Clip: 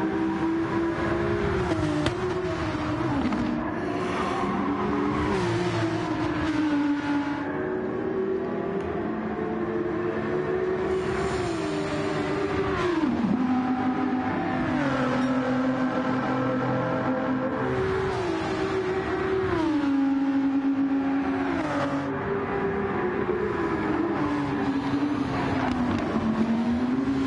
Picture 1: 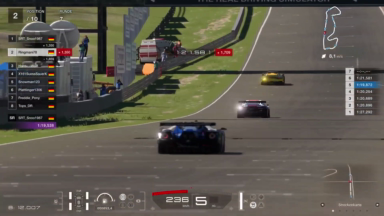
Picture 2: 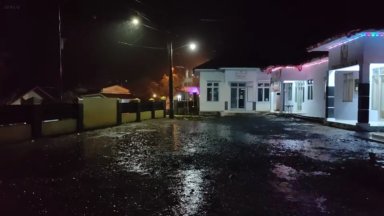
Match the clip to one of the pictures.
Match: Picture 1